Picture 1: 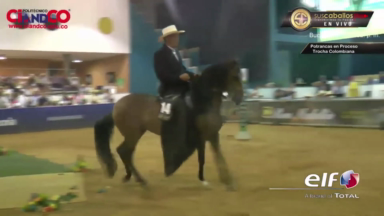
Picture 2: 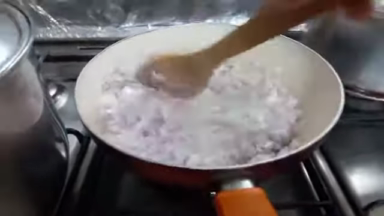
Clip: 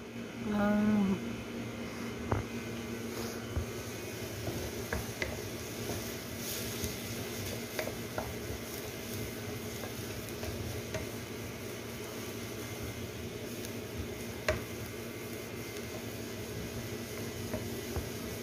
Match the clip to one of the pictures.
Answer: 2